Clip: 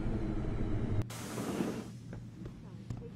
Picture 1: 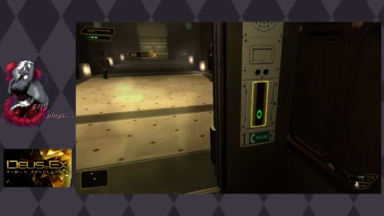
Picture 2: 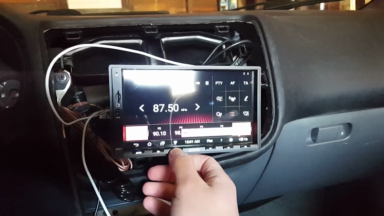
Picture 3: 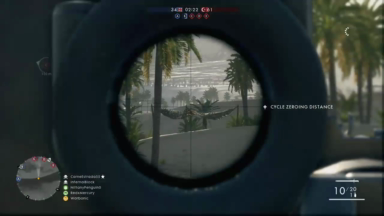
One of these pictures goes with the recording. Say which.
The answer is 1